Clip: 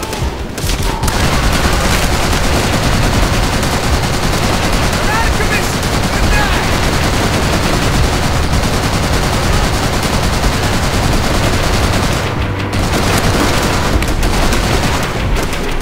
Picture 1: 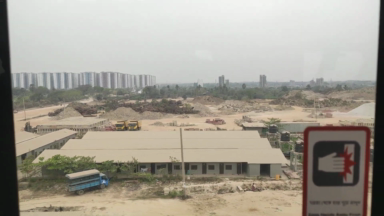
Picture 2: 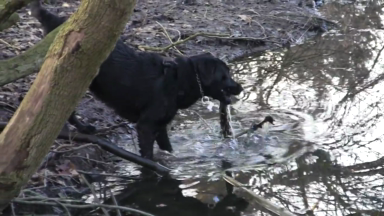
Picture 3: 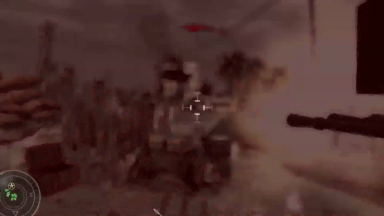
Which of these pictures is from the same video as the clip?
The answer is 3